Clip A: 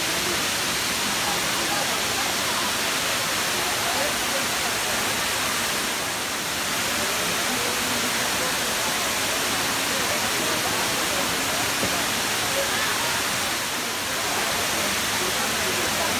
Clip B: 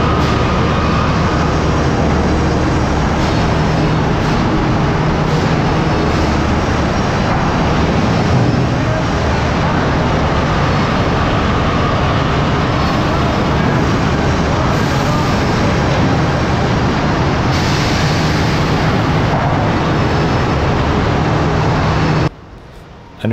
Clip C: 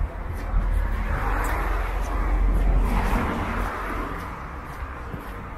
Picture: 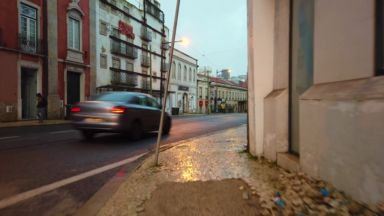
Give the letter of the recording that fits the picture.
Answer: C